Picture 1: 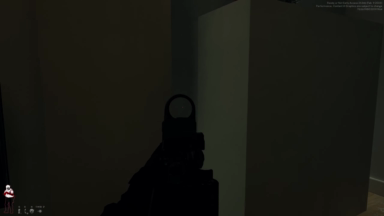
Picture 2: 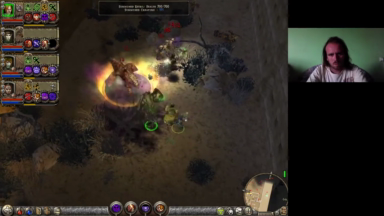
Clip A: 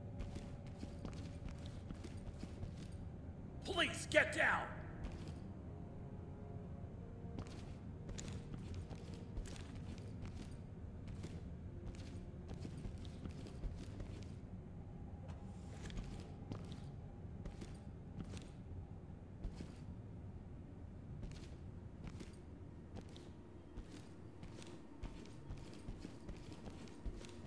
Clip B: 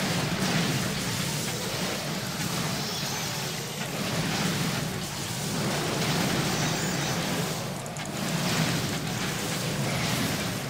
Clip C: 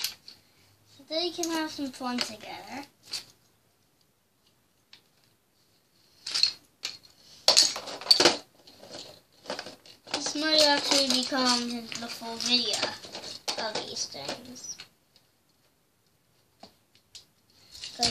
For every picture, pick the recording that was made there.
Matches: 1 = A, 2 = B